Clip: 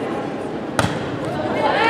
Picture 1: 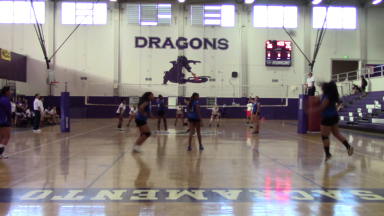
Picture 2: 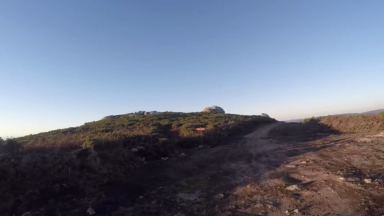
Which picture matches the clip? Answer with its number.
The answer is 1